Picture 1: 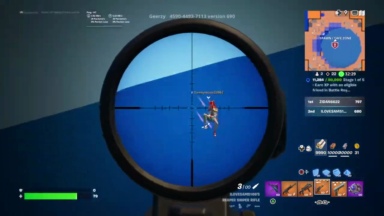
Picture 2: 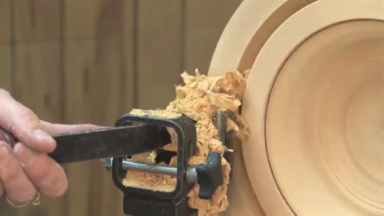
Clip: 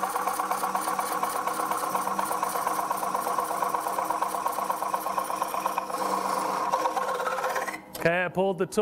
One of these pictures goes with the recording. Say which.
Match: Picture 2